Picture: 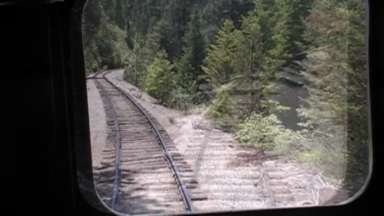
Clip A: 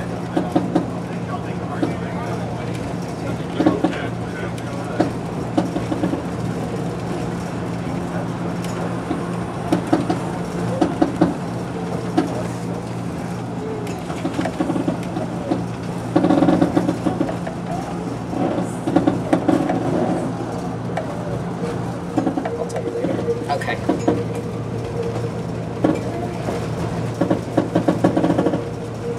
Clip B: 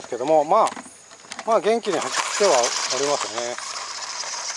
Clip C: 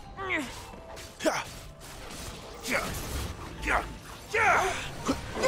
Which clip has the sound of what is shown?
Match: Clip A